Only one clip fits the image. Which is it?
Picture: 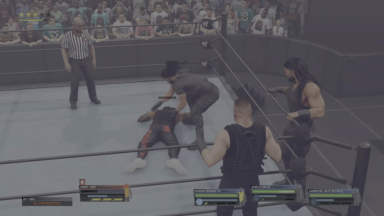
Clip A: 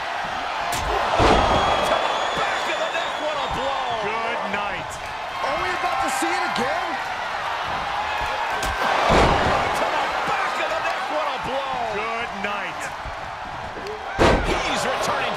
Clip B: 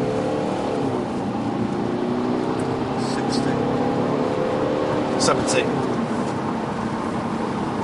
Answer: A